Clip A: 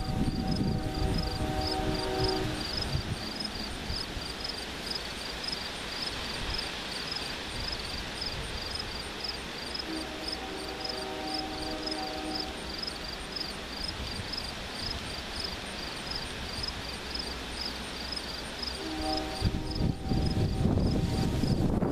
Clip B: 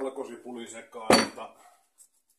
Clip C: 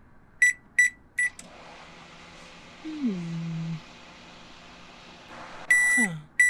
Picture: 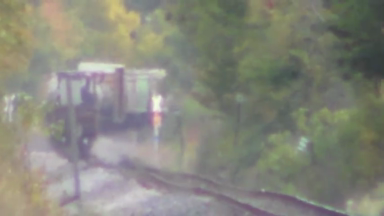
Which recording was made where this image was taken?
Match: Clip A